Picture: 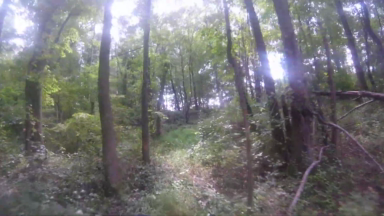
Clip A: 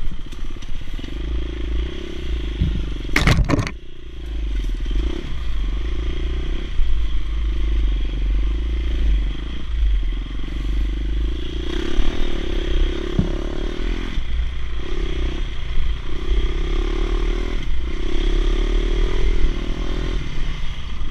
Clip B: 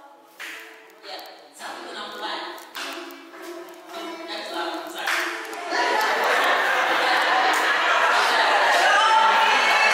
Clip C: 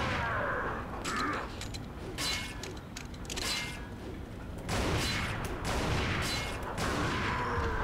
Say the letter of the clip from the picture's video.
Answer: A